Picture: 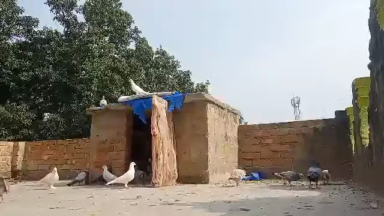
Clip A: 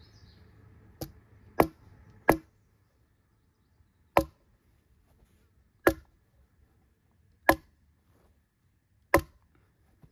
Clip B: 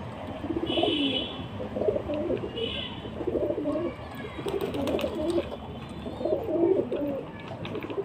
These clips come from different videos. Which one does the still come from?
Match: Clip B